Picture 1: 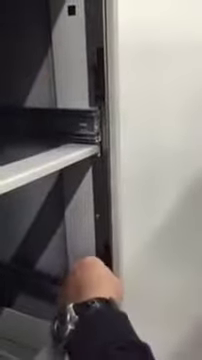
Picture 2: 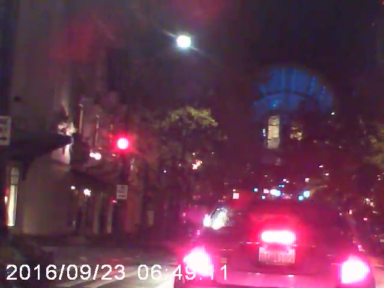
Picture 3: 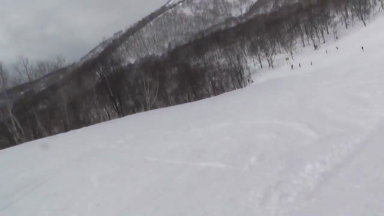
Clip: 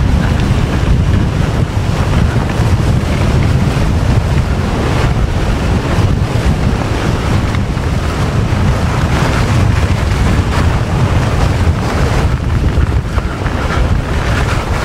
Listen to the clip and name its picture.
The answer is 3